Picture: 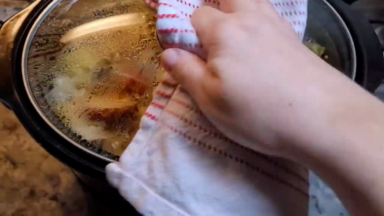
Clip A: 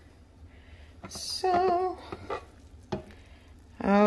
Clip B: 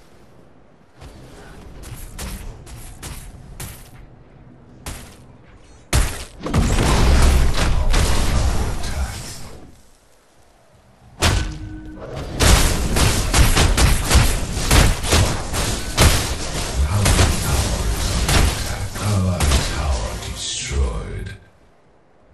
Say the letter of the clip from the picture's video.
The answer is A